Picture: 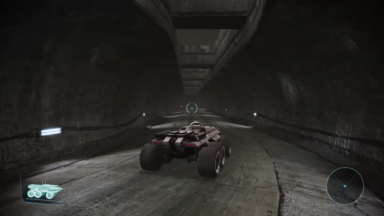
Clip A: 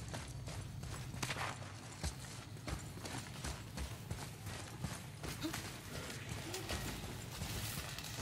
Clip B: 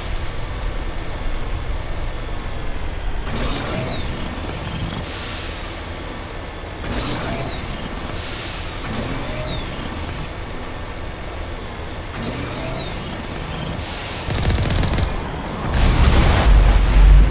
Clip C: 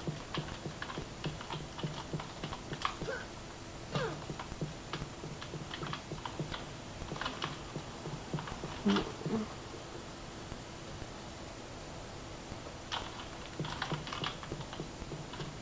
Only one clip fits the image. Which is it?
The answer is B